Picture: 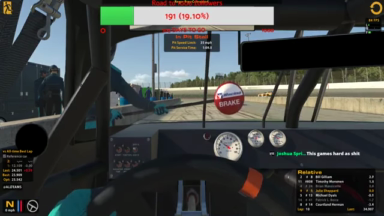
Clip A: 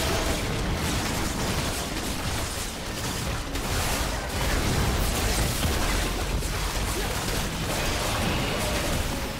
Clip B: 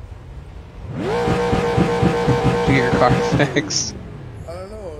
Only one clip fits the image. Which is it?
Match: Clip B